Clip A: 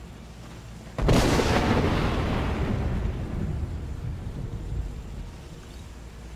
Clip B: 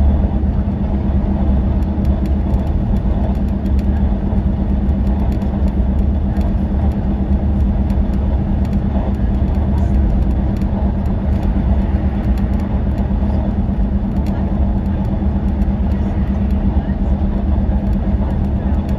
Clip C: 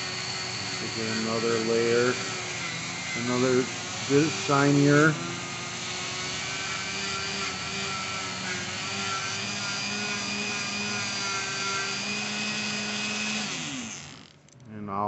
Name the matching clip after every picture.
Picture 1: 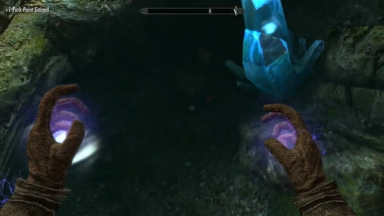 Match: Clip A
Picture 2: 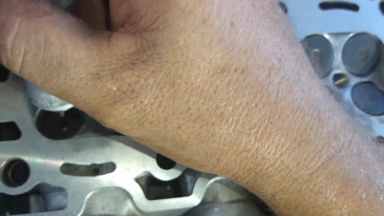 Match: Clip C